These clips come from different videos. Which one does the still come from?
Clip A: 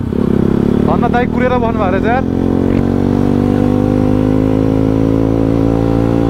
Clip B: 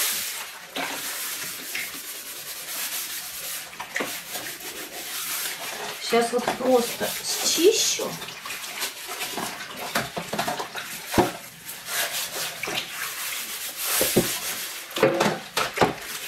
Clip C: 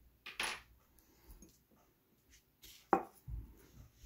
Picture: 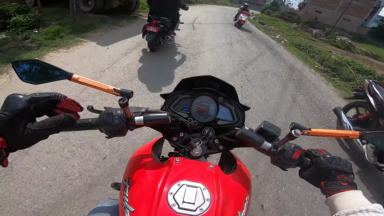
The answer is A